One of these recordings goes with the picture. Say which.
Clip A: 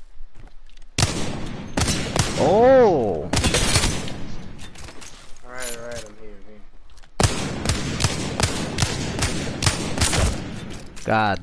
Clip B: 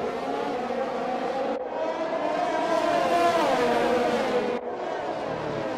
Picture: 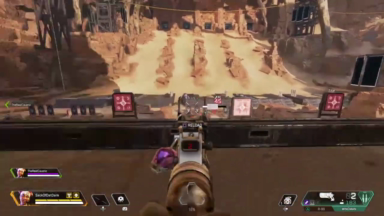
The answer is A